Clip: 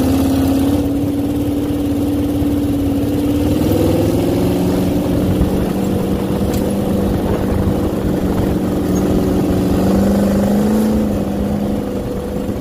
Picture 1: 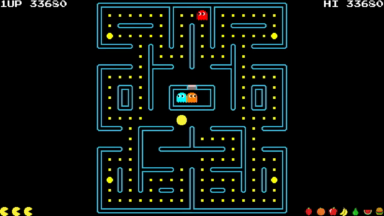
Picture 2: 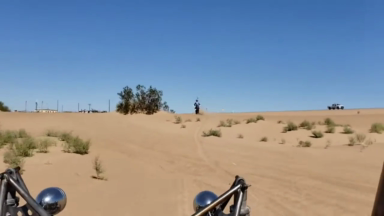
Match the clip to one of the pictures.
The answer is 2